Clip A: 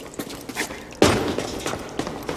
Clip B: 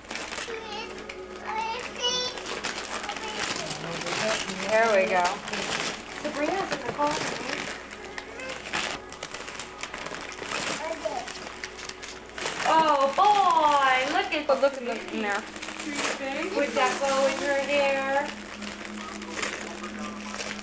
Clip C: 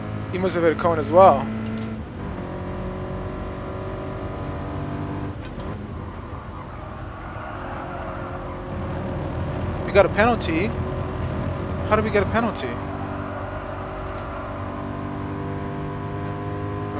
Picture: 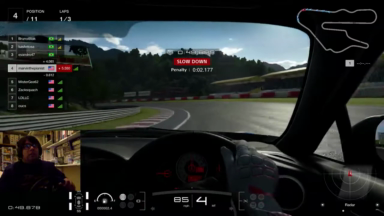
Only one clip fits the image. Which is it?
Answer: C